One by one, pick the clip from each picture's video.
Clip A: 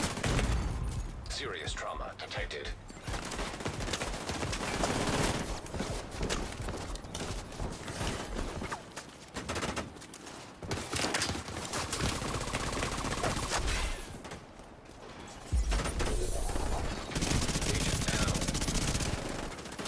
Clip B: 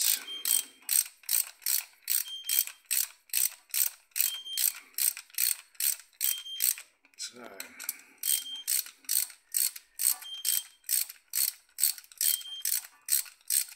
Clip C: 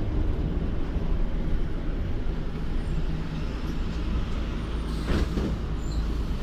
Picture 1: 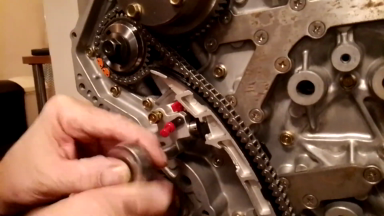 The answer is B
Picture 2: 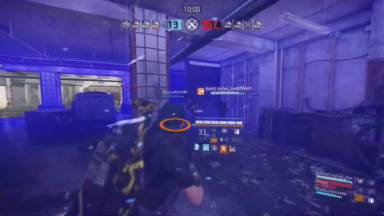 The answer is A